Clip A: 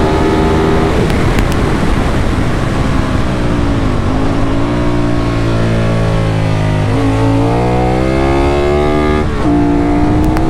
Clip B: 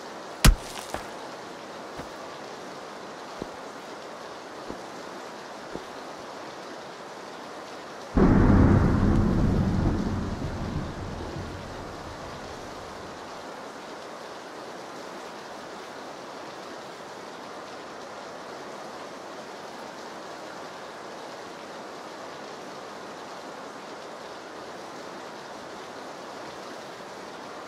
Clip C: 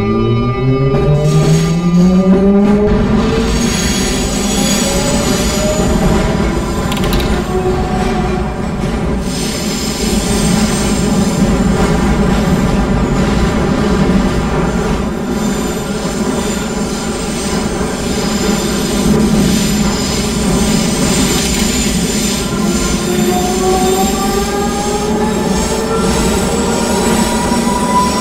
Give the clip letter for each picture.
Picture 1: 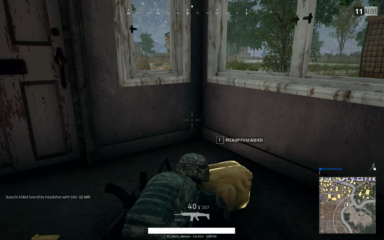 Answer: B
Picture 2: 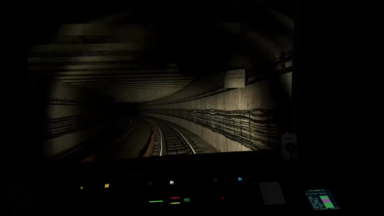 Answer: C